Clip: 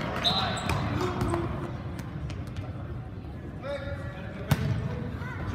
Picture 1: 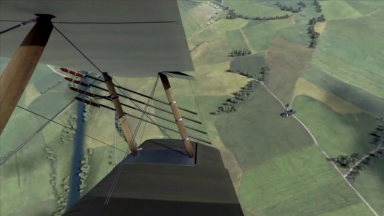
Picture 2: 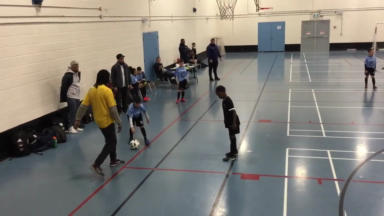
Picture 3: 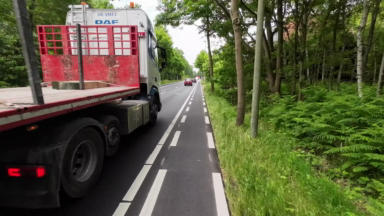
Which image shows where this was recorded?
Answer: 2